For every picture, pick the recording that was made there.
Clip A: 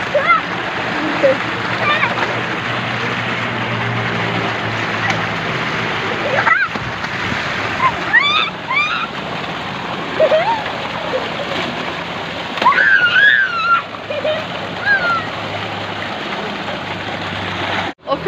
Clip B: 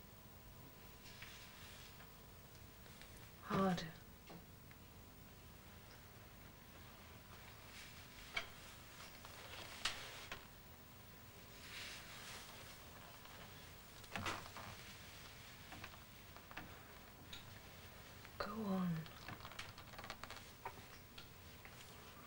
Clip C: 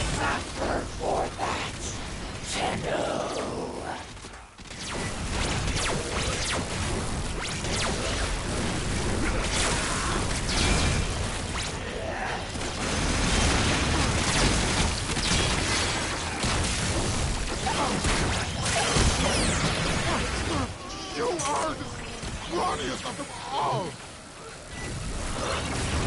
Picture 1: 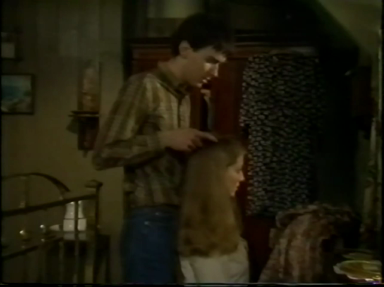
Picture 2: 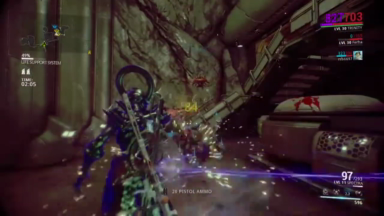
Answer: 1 B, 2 C